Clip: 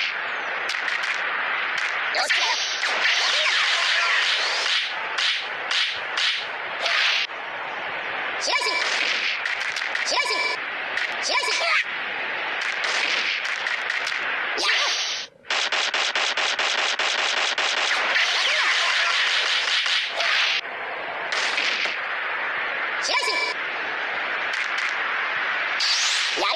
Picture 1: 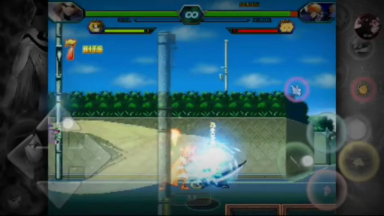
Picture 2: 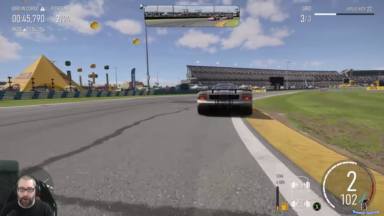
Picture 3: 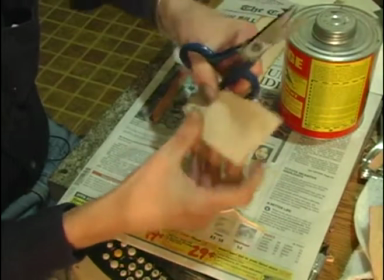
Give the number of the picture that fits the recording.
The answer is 1